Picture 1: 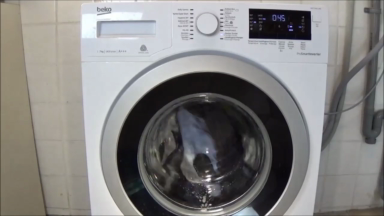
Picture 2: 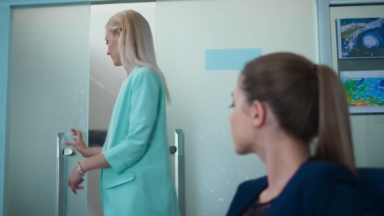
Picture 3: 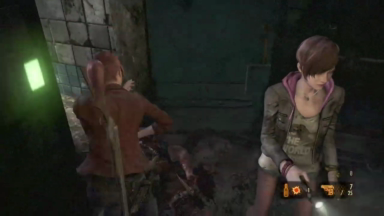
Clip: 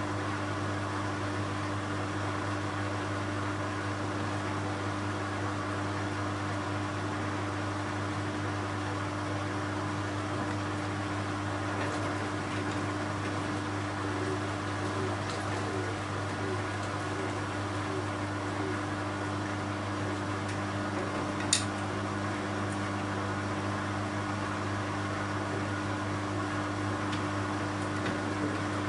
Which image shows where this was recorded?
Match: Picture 1